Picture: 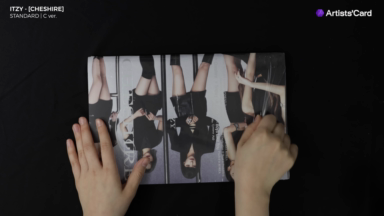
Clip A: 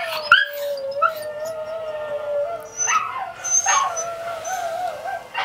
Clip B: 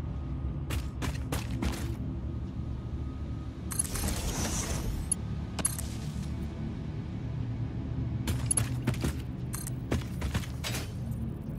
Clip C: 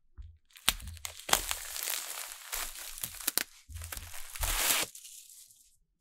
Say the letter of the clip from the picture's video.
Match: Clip C